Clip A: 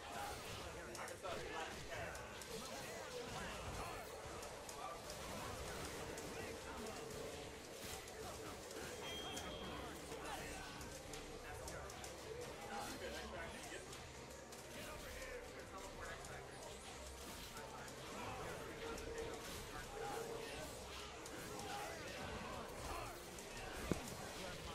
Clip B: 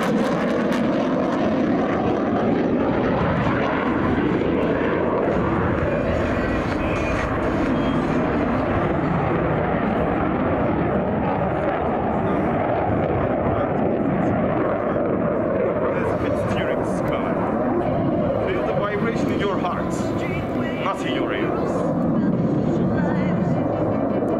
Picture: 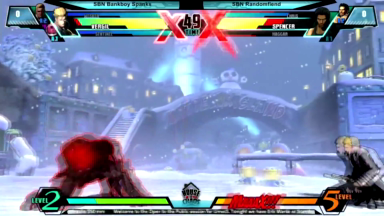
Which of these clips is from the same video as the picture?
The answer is A